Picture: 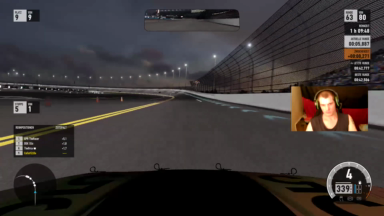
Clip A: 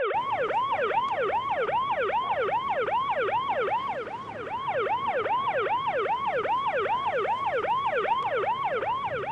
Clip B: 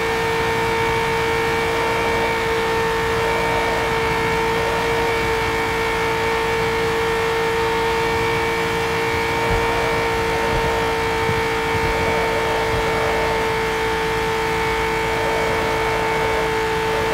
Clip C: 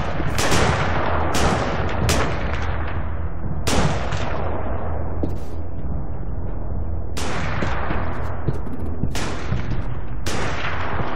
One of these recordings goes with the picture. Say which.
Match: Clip B